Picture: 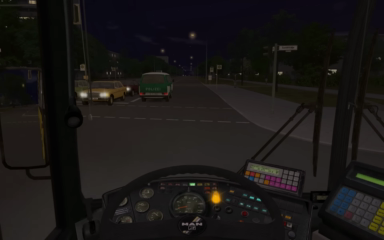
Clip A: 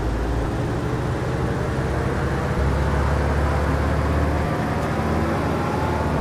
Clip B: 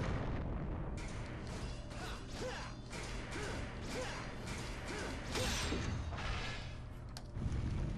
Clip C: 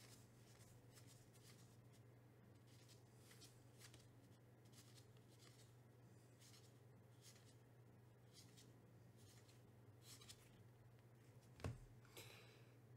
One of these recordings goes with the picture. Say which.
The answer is A